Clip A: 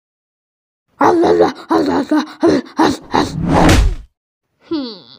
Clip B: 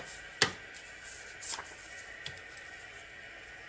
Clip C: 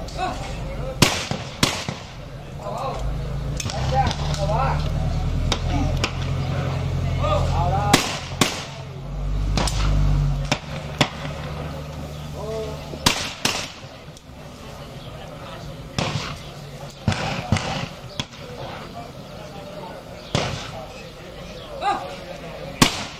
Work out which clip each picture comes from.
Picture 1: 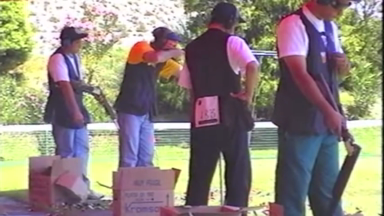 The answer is C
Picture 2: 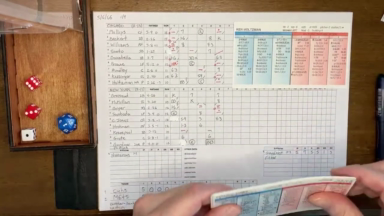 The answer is B